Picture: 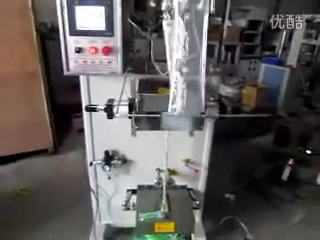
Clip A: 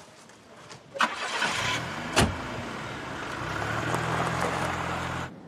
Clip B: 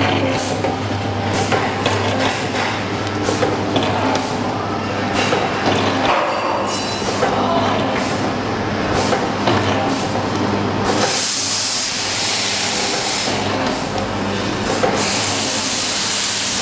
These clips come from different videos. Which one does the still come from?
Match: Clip B